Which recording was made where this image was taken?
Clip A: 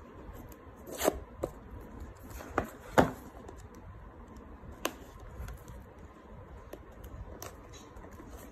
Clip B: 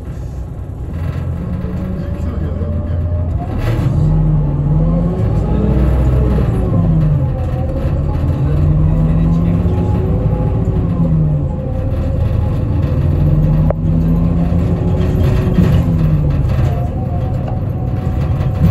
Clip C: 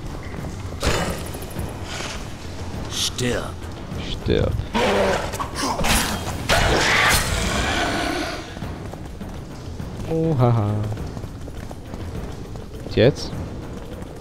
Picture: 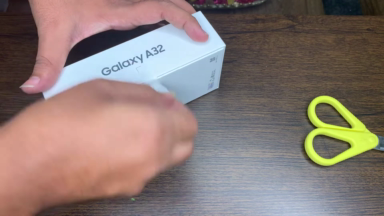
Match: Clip A